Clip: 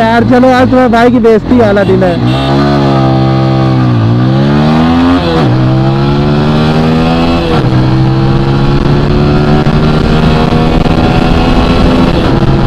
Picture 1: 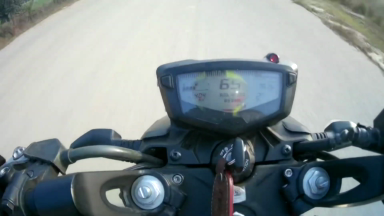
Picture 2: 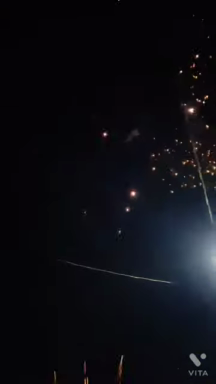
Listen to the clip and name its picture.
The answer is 1